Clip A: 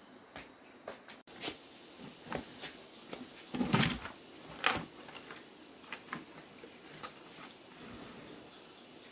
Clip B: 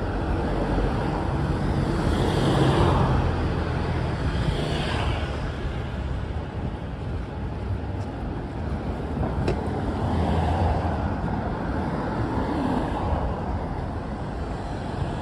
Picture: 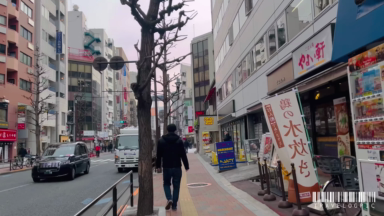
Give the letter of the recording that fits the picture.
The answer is B